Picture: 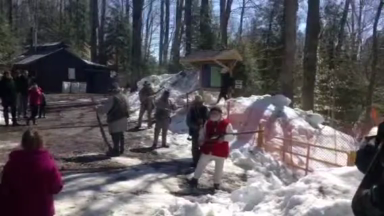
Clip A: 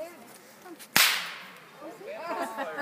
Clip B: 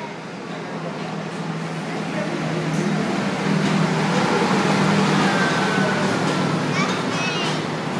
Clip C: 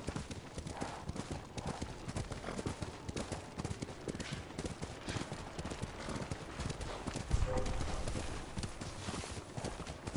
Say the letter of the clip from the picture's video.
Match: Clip A